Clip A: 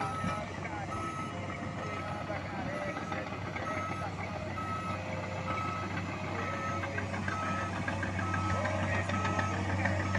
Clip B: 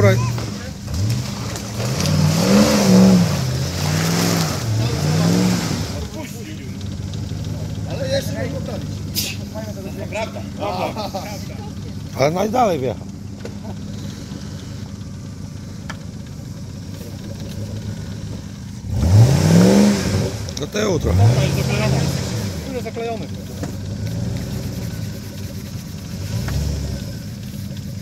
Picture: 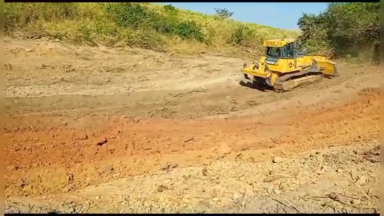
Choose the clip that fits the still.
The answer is A